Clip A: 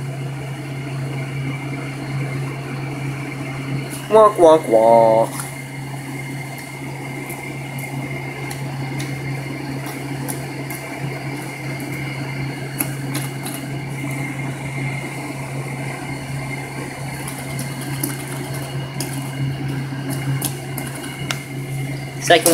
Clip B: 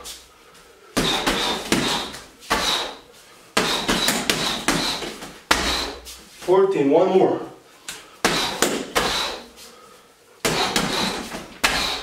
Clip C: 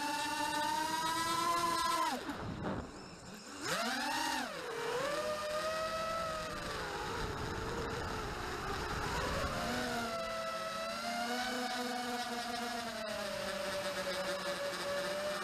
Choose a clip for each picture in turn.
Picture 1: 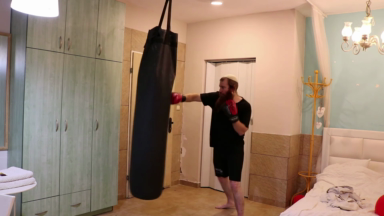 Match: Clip B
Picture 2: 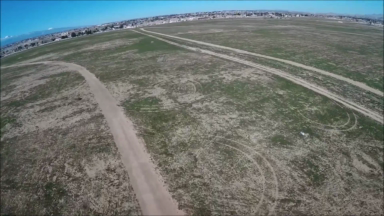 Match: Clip C